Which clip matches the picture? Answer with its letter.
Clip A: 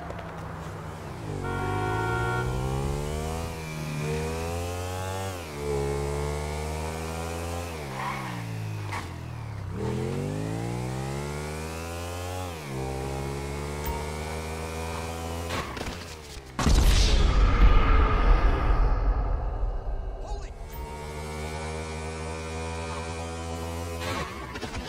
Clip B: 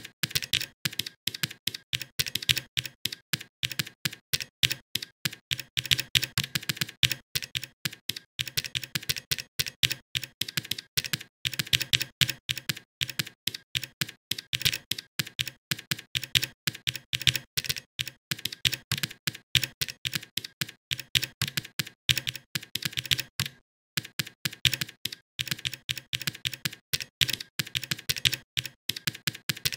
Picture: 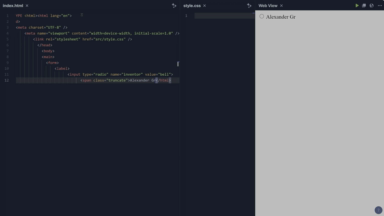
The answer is B